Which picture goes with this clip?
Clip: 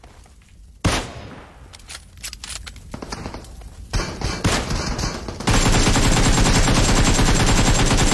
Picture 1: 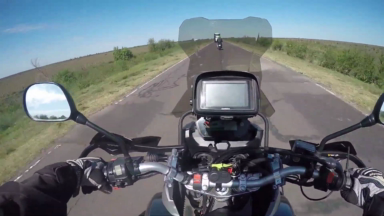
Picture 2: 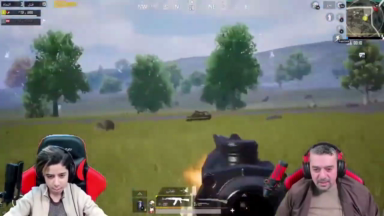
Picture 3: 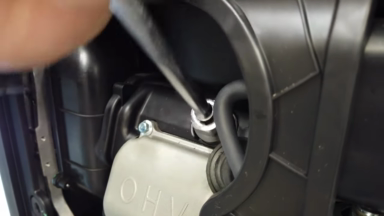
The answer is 2